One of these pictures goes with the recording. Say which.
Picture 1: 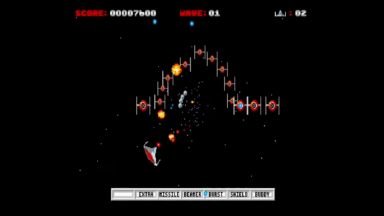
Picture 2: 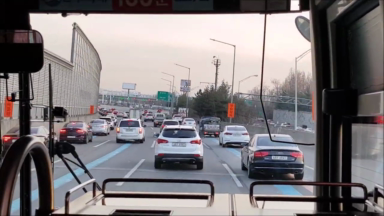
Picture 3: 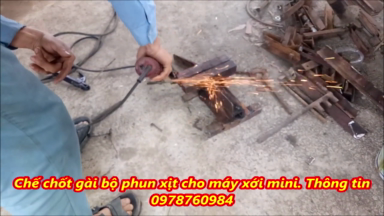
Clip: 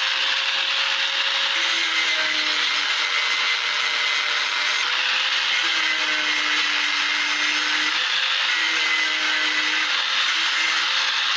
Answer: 3